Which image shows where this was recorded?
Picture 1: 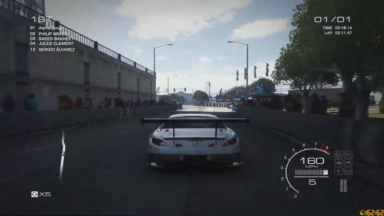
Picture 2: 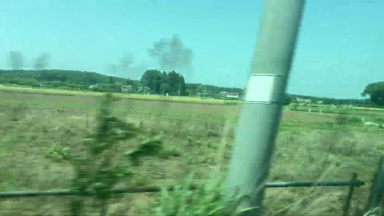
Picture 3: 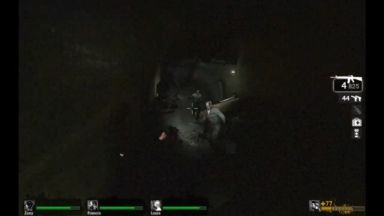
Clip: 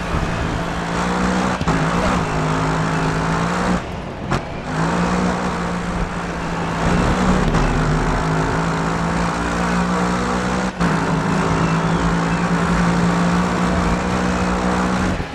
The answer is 1